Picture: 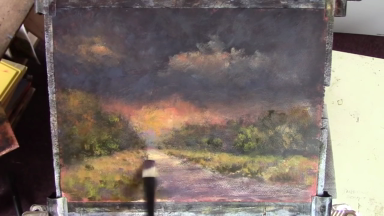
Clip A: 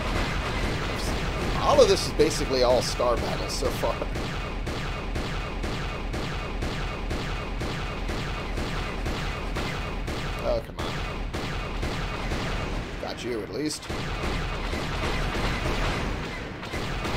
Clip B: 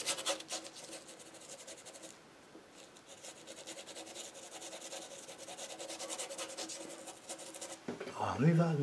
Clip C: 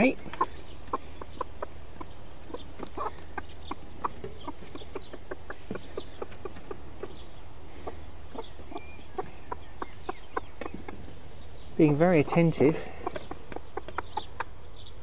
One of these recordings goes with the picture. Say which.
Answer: B